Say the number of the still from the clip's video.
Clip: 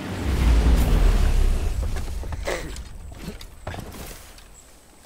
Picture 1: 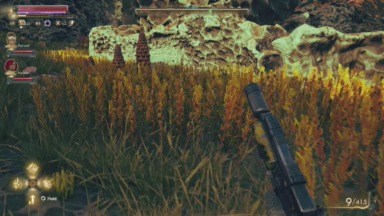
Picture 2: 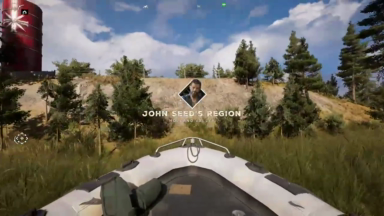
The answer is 2